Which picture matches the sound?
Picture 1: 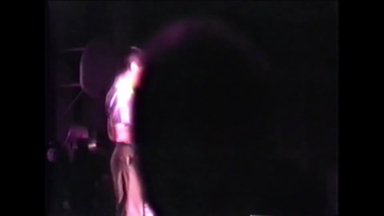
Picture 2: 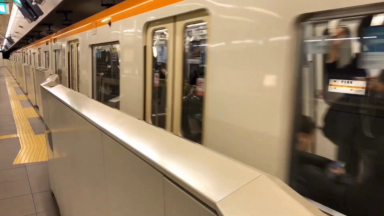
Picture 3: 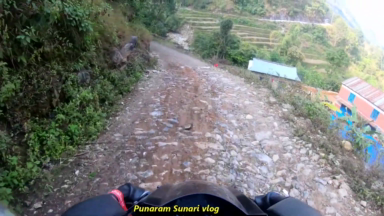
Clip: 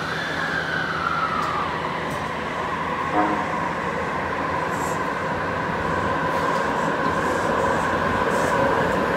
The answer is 2